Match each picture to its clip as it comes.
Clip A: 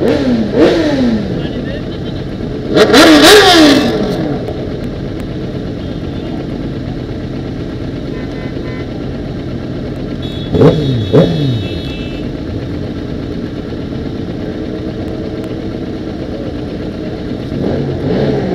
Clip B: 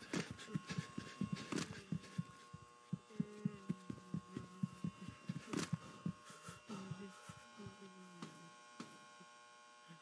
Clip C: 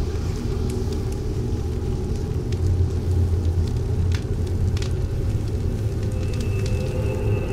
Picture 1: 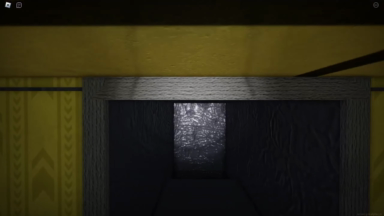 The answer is B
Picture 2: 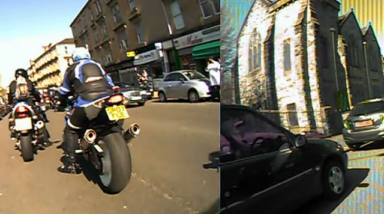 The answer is A